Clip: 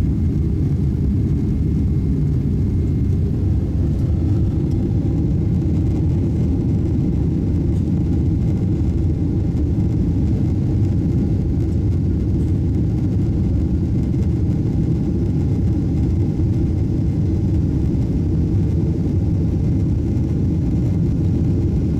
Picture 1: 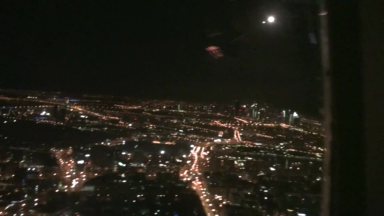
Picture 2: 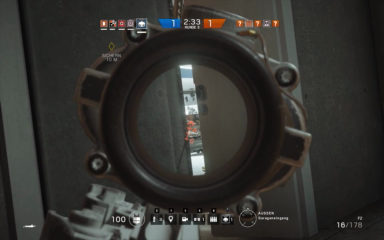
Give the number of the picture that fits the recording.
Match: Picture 1